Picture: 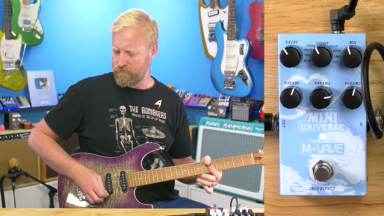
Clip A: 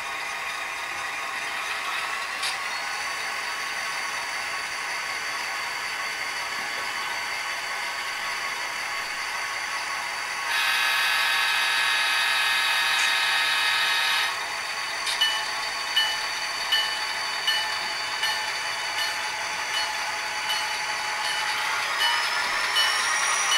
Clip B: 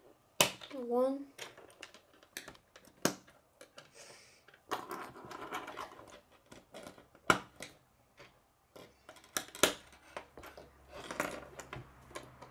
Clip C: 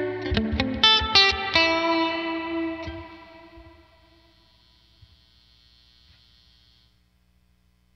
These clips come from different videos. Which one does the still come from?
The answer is C